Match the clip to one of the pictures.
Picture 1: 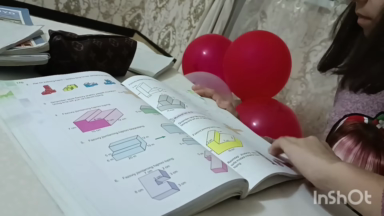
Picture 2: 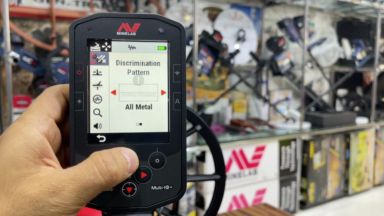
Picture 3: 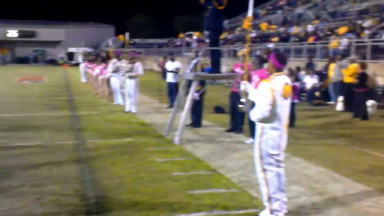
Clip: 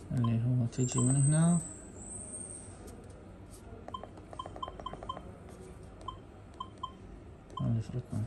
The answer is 2